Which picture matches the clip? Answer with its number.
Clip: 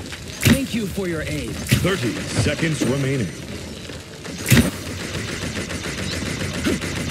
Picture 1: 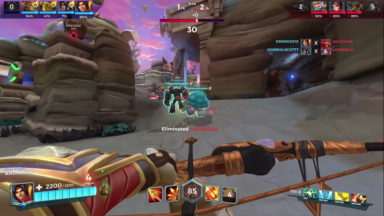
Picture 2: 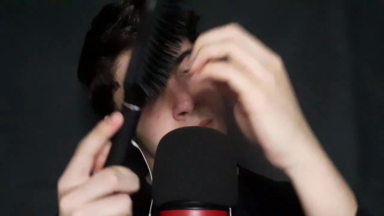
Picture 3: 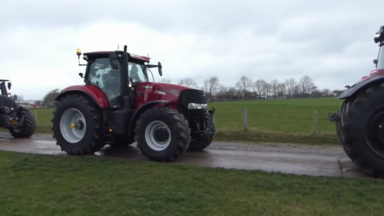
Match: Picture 1